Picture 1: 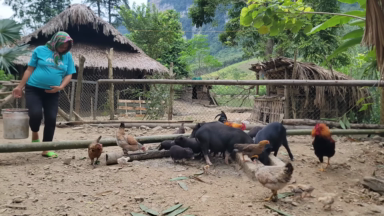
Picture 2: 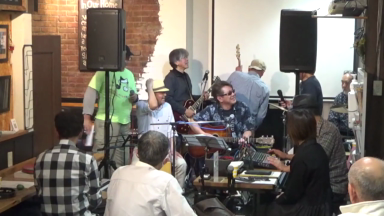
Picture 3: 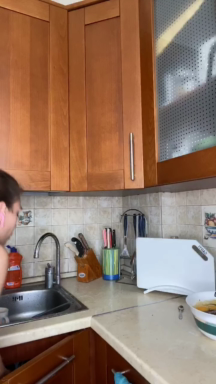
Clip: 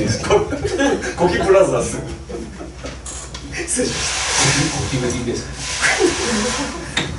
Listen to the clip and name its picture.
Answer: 2